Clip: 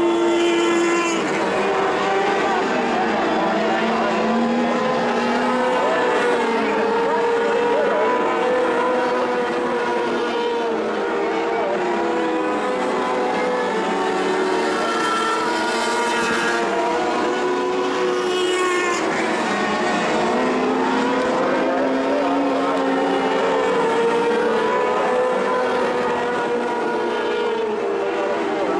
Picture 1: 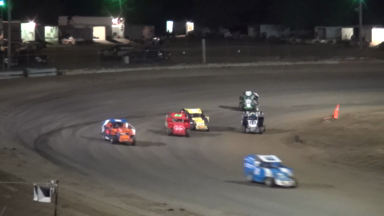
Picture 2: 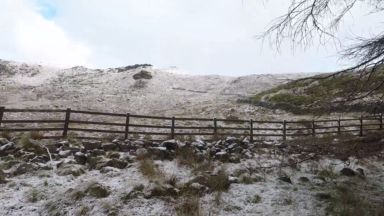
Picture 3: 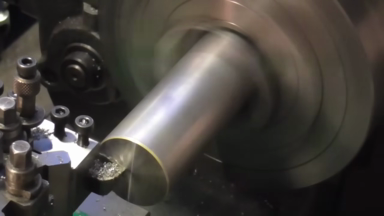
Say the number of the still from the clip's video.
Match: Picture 1